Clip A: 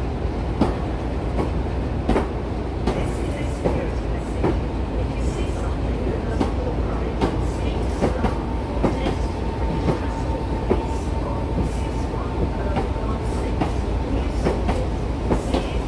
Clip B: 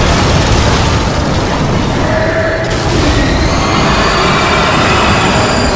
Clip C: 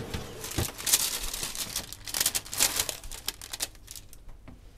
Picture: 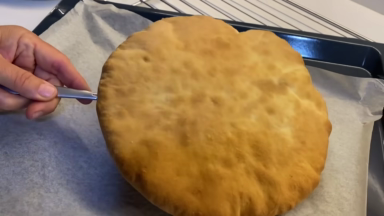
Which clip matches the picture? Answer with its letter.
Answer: C